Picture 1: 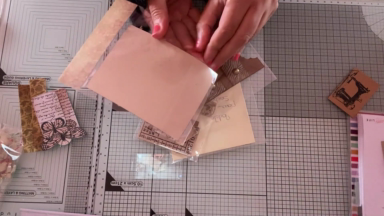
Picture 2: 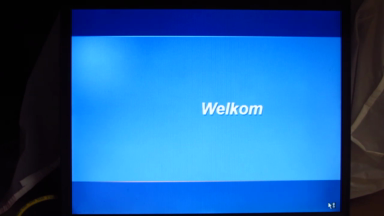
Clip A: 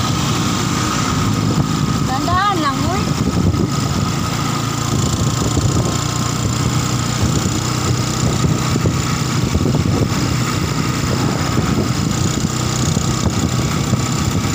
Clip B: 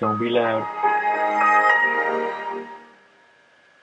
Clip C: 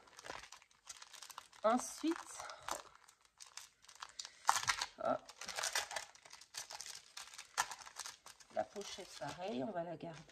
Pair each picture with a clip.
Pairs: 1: C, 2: B